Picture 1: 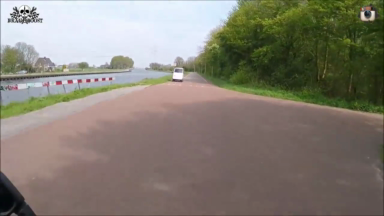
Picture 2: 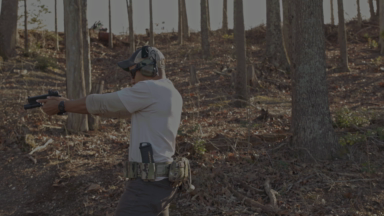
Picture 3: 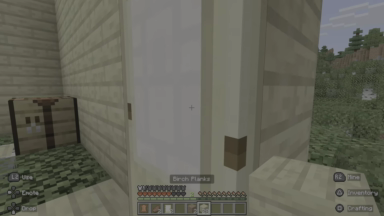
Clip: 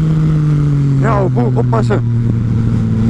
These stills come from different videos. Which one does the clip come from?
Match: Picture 1